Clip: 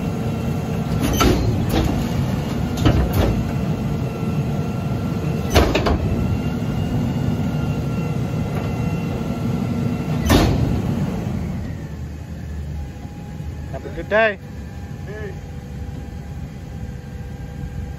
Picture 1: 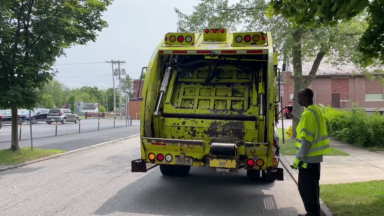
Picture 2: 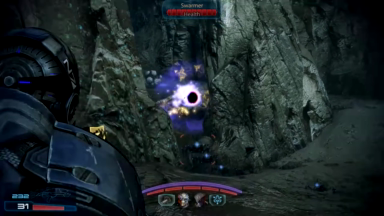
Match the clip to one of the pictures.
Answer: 1